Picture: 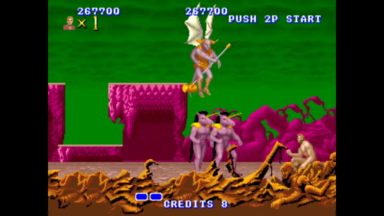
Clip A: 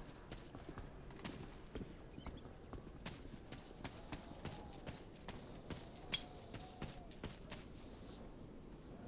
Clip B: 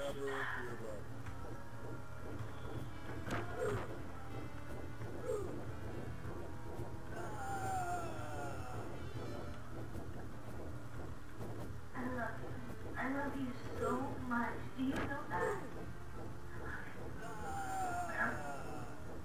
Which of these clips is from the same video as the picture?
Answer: B